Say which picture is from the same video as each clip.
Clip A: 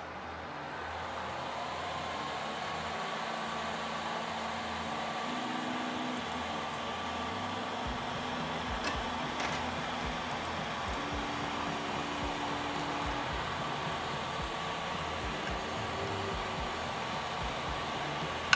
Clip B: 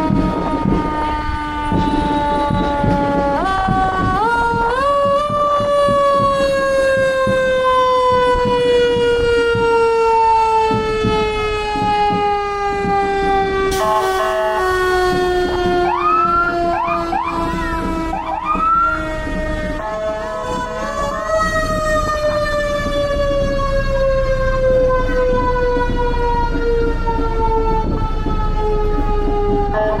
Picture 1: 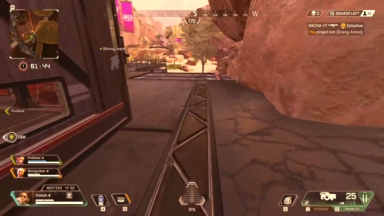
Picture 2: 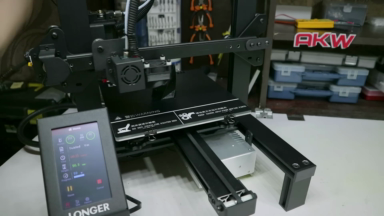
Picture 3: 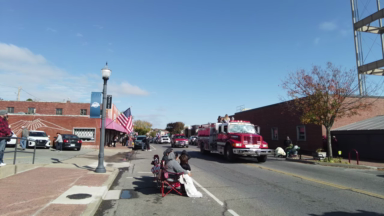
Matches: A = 2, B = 3